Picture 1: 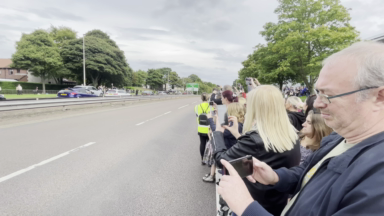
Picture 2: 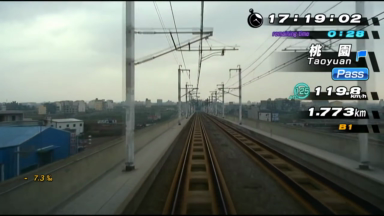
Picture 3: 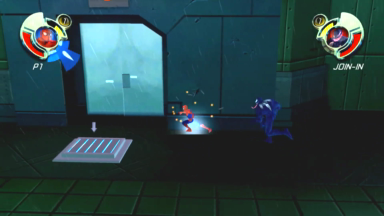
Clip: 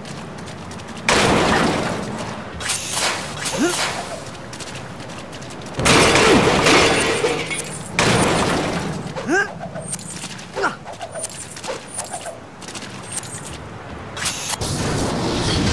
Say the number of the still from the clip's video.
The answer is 3